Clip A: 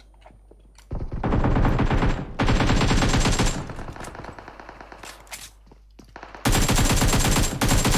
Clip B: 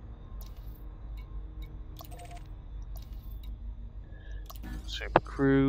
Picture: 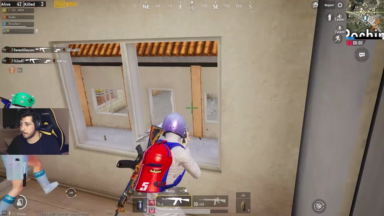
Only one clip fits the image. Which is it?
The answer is A